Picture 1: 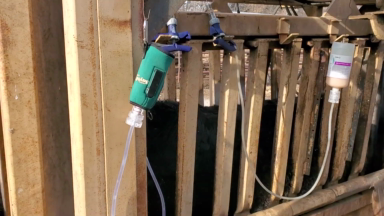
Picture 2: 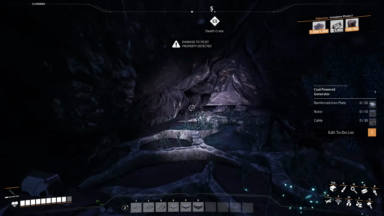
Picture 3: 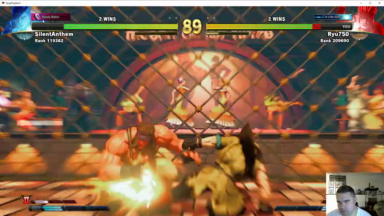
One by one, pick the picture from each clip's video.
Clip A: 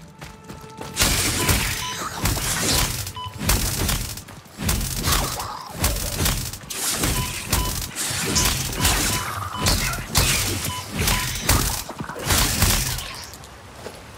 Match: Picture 2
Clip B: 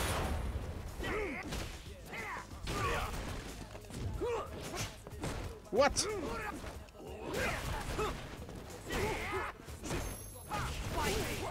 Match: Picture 3